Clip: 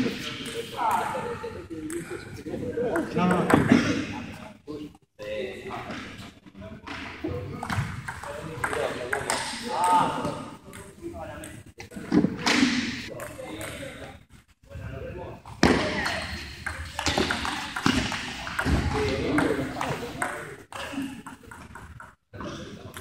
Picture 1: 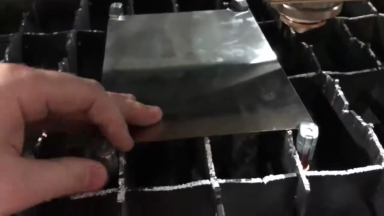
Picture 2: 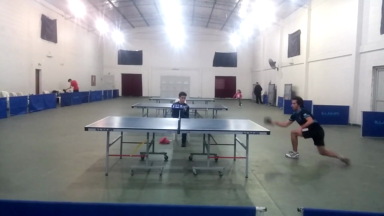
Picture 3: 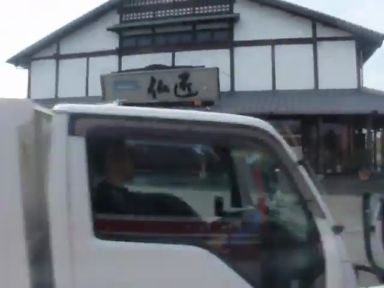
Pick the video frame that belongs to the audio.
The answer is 2